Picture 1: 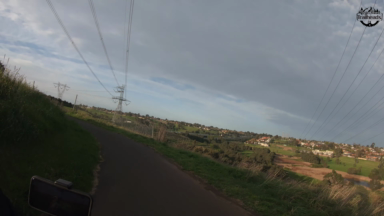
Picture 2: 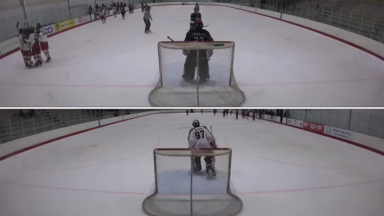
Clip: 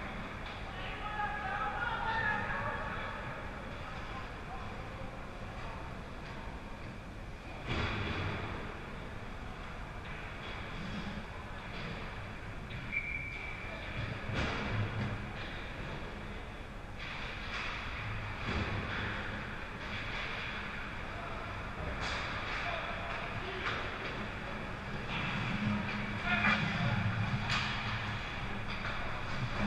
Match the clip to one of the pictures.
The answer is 2